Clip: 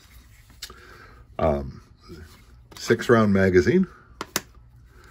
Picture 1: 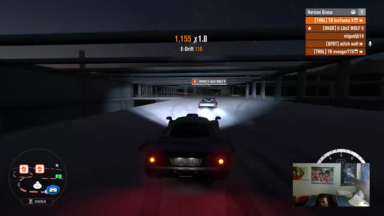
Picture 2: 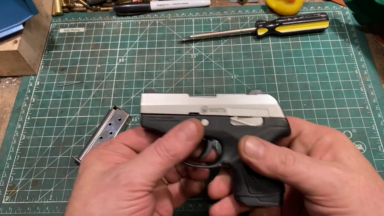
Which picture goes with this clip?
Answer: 2